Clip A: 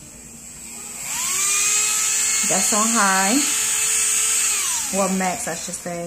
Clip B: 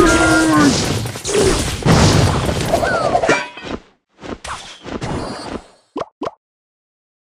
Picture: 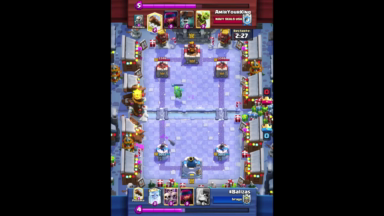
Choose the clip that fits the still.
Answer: B